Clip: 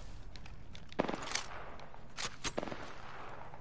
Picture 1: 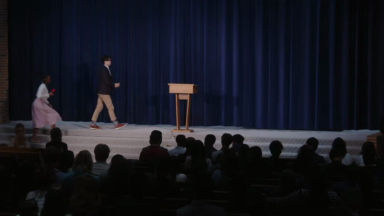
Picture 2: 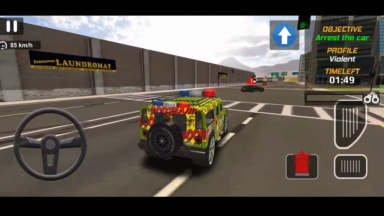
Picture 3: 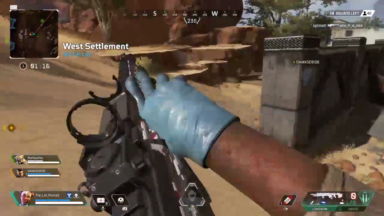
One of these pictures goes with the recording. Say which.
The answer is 3